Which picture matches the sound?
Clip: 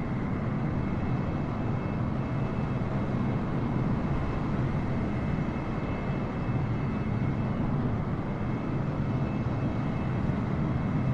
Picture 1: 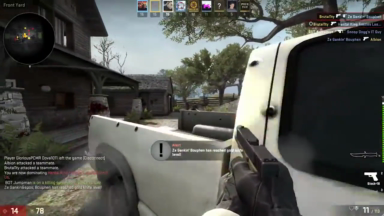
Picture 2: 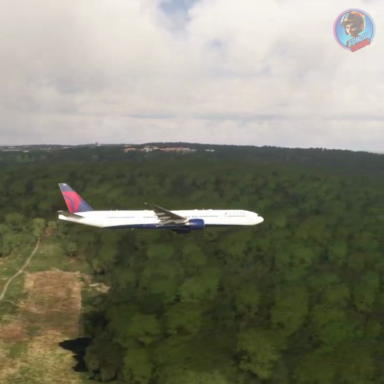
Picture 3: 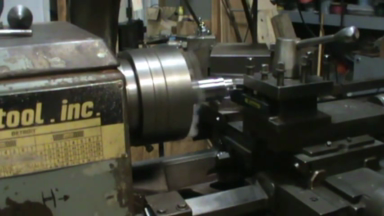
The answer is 2